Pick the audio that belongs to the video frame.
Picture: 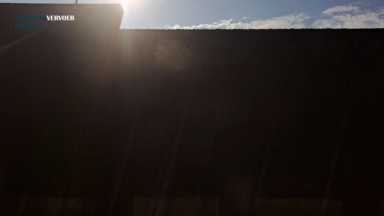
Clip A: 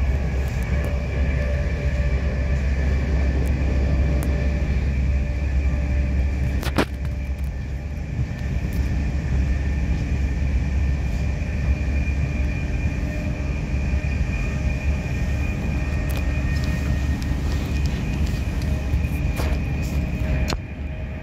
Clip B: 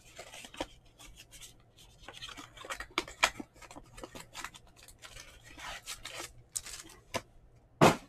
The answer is A